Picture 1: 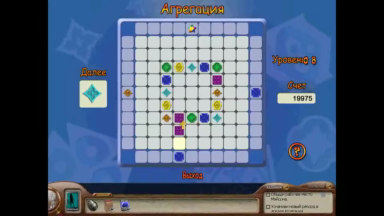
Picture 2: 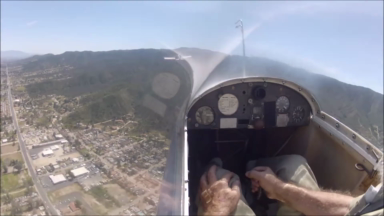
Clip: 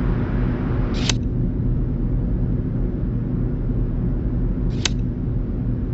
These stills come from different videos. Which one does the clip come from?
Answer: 1